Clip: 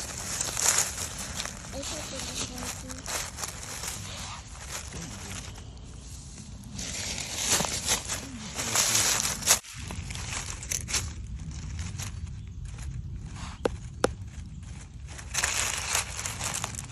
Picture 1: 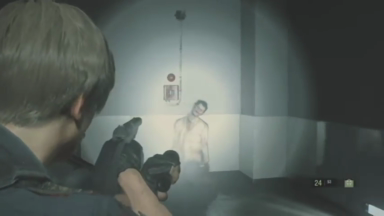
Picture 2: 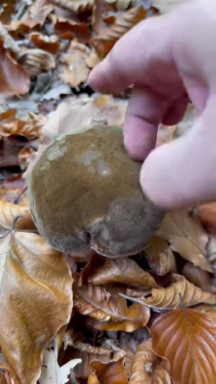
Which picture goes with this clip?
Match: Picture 2